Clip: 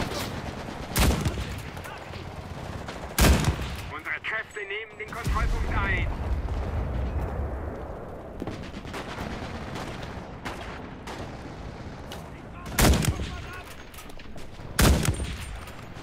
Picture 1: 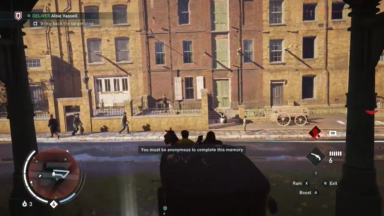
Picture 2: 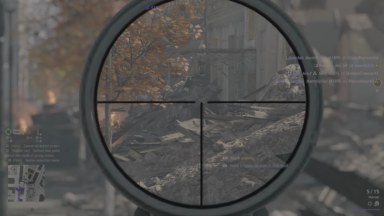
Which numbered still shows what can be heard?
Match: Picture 2